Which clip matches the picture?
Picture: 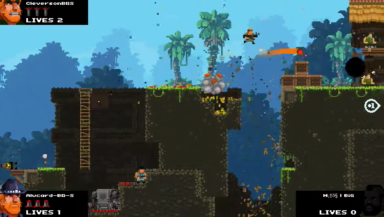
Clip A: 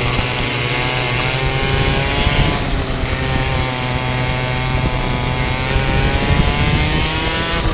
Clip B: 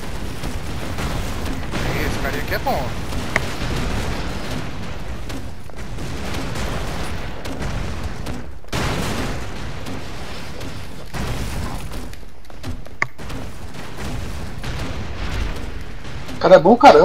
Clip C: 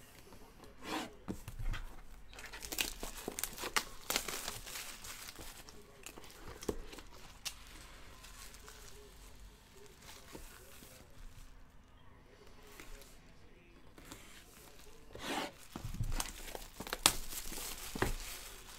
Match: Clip B